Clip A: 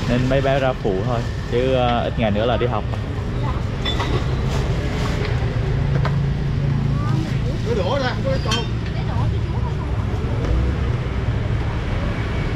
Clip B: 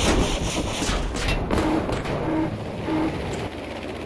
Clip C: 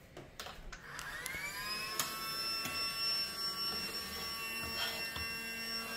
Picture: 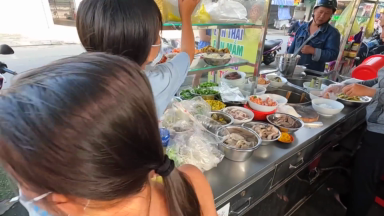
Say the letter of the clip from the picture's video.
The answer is A